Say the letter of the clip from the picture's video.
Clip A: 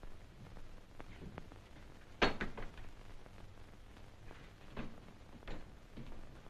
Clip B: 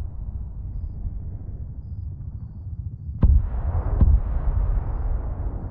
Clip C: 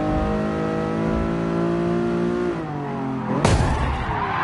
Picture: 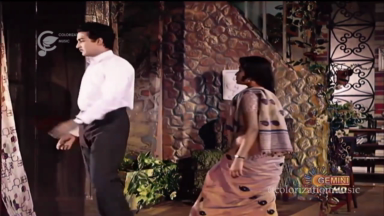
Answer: A